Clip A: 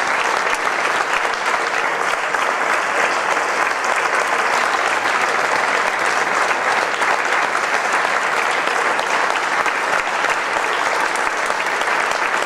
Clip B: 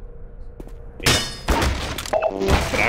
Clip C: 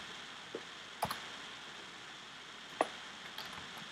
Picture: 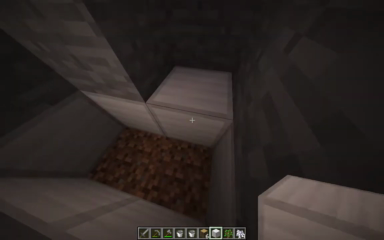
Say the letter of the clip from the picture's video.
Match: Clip C